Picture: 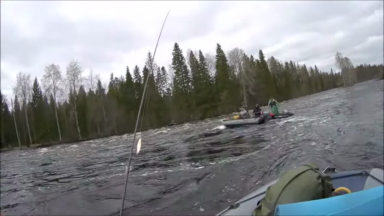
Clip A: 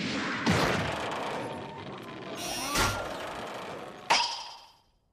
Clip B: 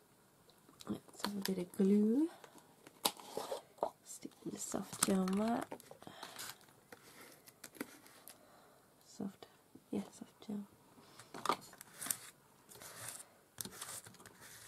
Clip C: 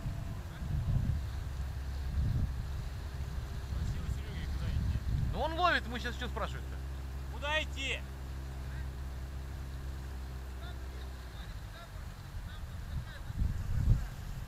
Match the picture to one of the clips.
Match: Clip C